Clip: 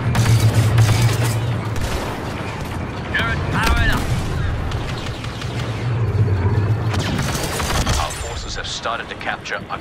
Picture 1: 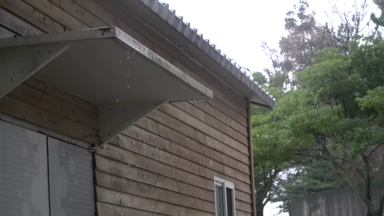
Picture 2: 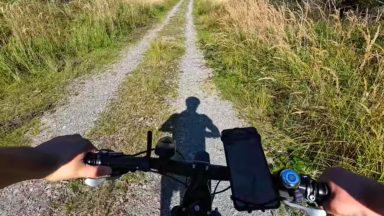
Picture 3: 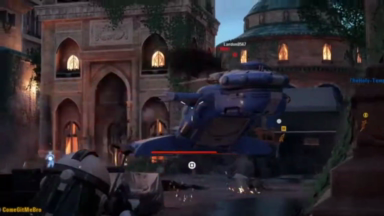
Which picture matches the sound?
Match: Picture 3